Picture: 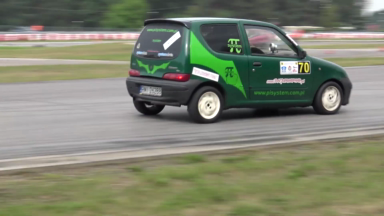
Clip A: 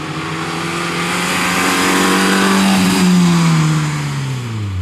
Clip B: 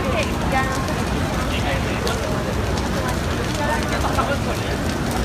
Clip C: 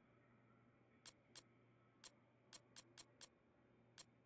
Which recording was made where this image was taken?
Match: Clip A